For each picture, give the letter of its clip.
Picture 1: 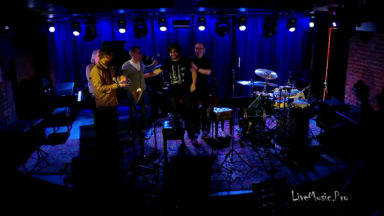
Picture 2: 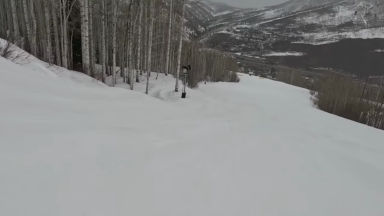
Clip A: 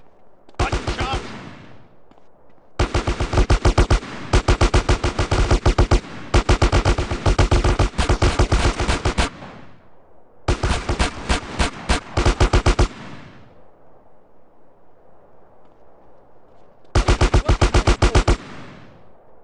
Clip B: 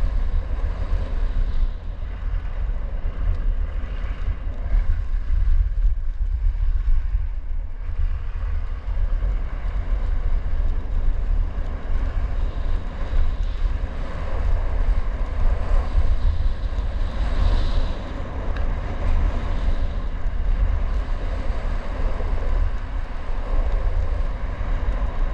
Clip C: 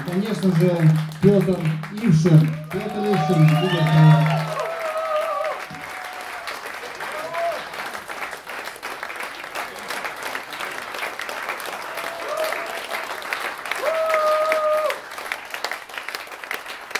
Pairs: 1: C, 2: B